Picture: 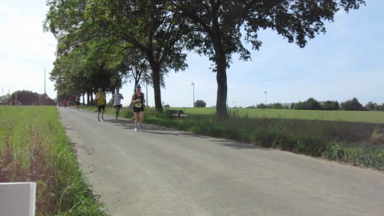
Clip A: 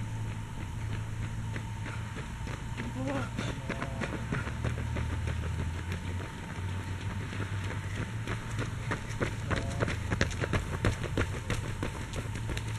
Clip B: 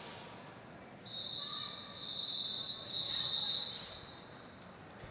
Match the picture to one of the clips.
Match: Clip A